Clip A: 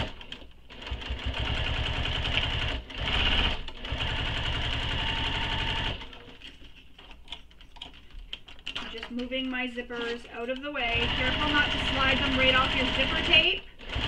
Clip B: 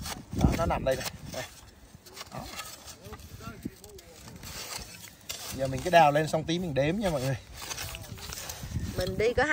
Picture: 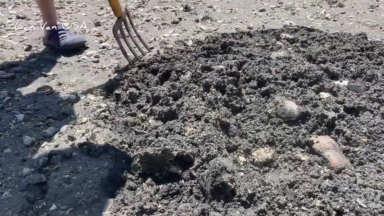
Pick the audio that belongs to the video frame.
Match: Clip B